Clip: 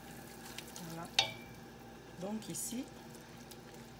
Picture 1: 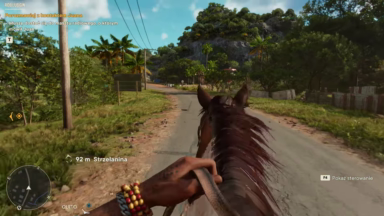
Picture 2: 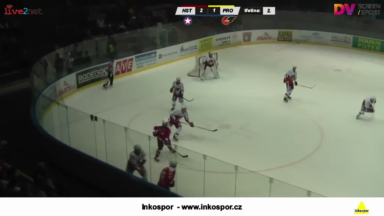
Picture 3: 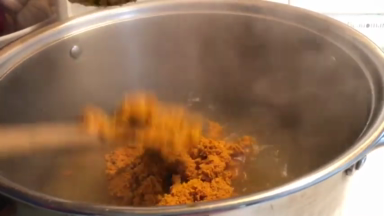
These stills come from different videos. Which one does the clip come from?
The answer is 3